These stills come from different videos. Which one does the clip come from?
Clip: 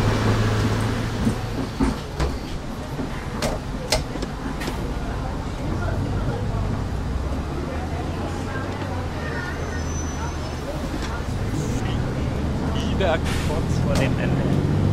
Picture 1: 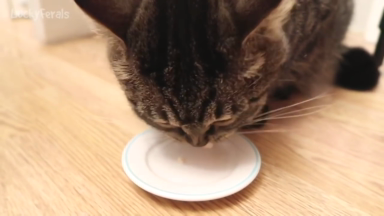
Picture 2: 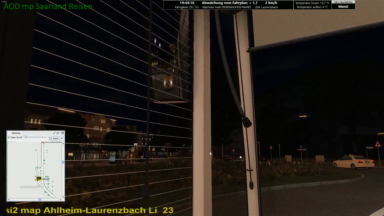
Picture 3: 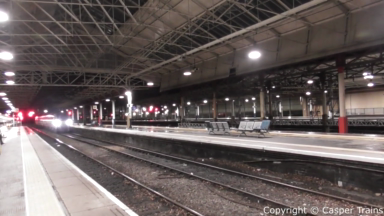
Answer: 2